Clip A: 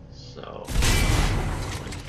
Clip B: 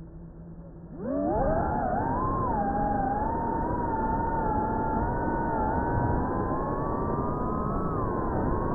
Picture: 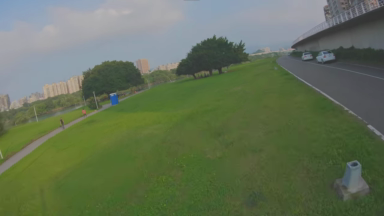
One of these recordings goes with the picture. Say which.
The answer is B